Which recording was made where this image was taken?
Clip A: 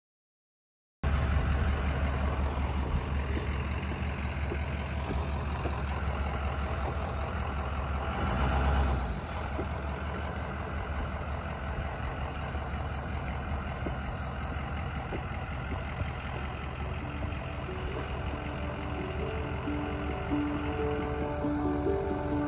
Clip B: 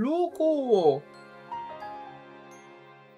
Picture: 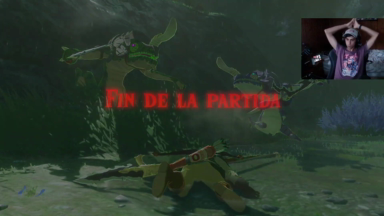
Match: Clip B